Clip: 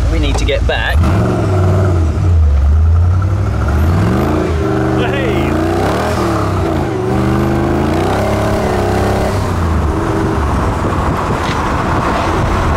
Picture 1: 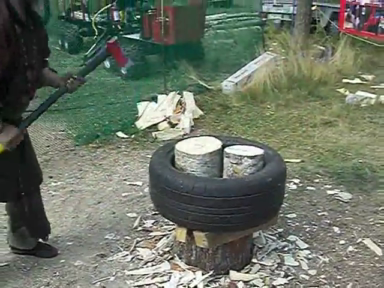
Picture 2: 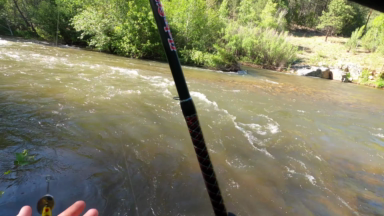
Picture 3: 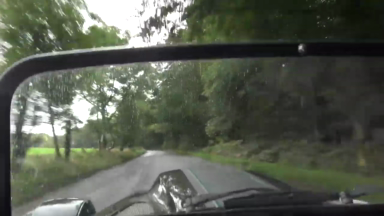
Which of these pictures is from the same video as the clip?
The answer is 3